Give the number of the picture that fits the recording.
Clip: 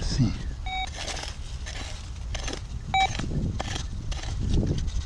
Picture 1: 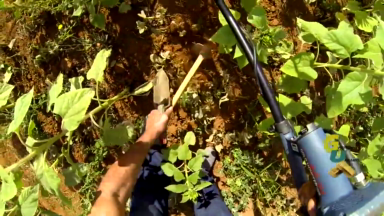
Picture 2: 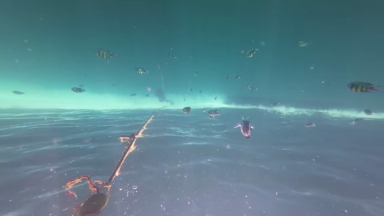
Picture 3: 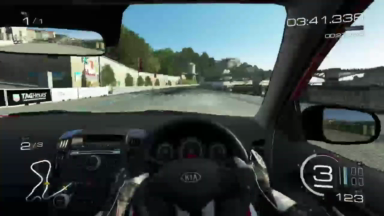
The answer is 1